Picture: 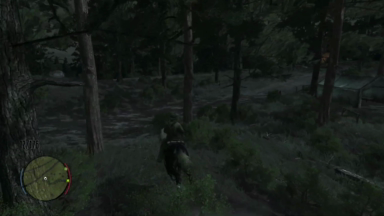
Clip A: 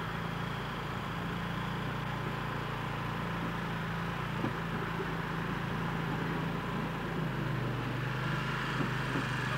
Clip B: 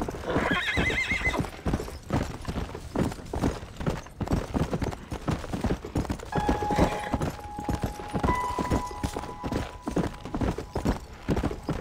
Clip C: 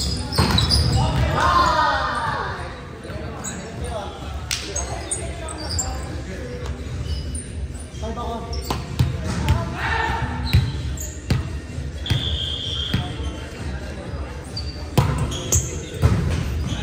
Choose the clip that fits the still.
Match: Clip B